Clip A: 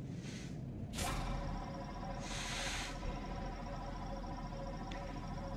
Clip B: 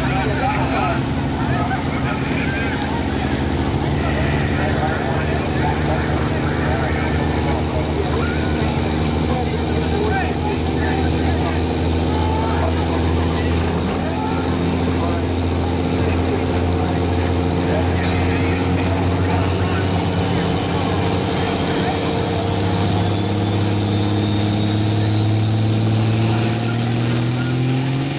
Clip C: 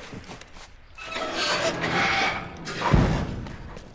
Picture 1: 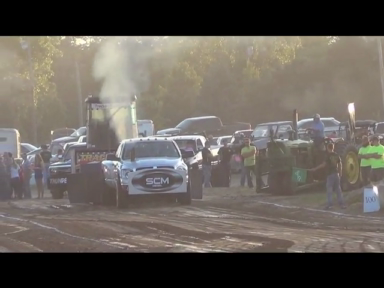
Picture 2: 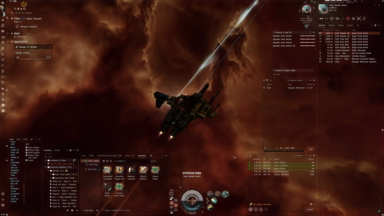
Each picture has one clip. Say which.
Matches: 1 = B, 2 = A